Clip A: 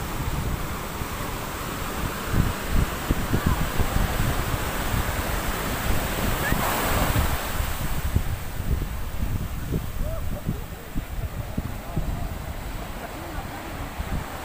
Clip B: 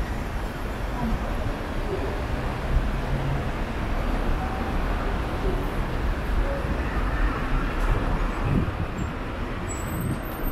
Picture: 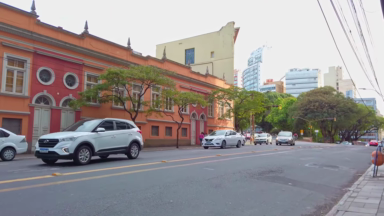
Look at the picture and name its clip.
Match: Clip B